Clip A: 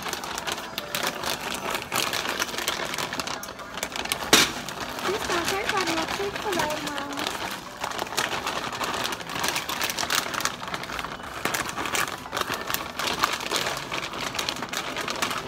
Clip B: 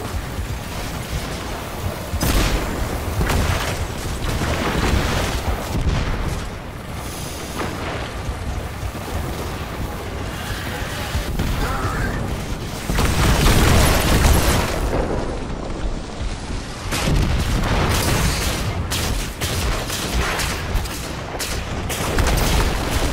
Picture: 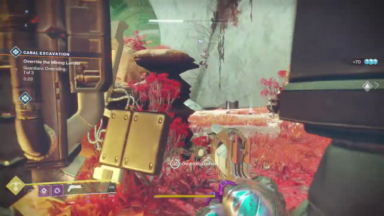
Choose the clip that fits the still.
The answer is B